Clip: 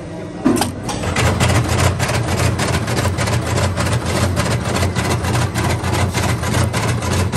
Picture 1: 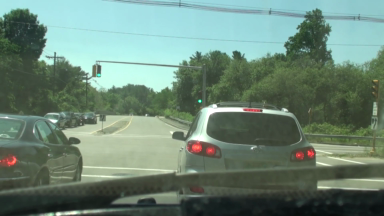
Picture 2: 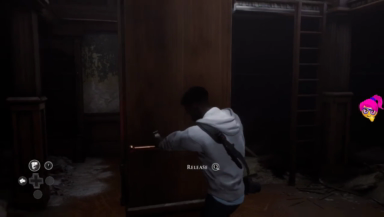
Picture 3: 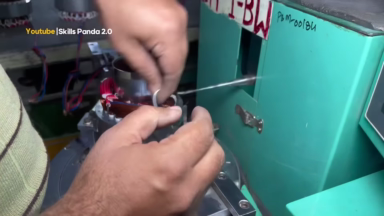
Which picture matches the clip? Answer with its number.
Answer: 3